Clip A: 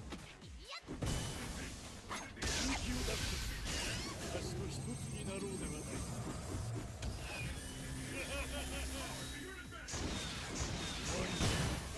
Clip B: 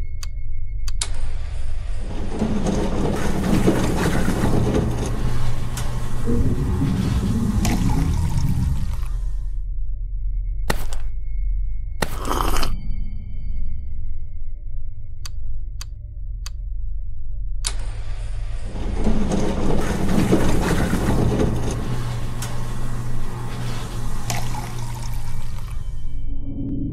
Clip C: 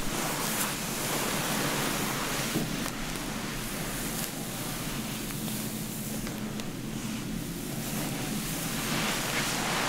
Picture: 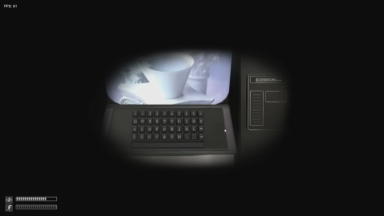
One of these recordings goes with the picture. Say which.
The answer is B